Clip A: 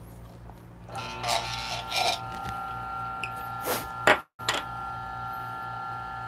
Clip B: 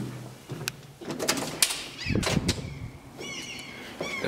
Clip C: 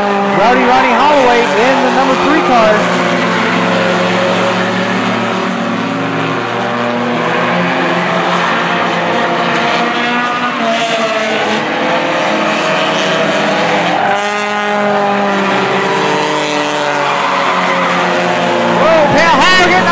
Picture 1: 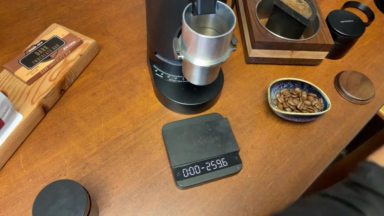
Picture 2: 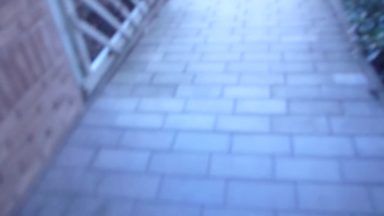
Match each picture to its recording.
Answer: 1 A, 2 B